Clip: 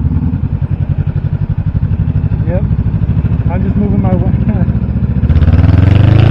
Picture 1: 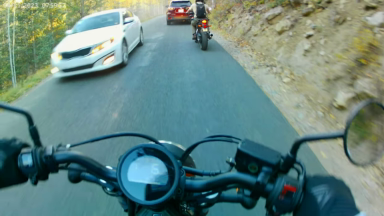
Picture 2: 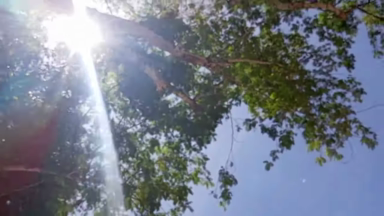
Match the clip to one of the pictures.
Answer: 1